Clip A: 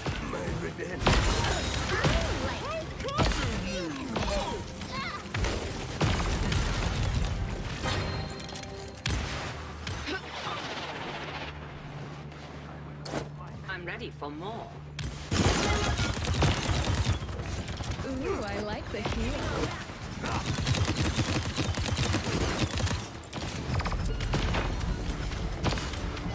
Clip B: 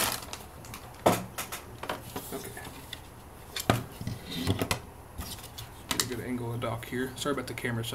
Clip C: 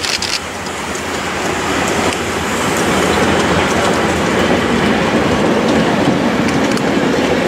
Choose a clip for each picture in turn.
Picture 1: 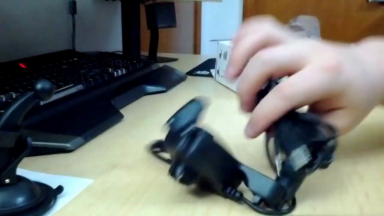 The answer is B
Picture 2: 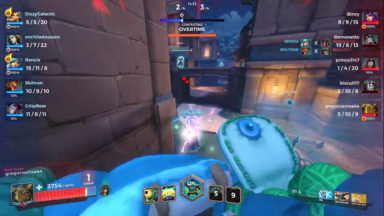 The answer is A